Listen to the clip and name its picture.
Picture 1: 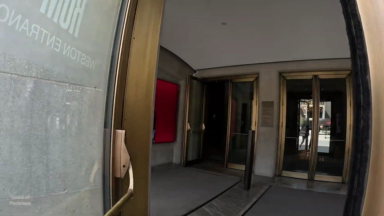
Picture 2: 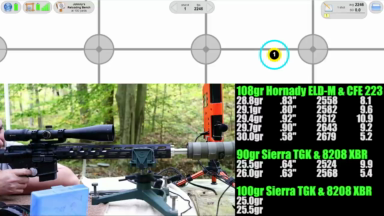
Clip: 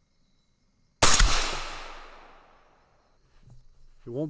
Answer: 2